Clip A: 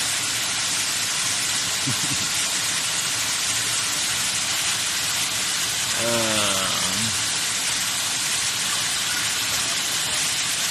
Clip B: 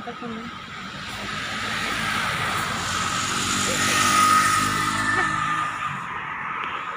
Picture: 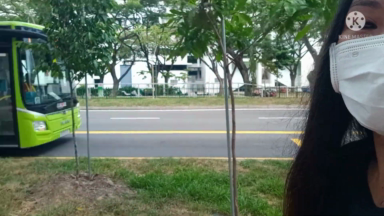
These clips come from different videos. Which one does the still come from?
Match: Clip B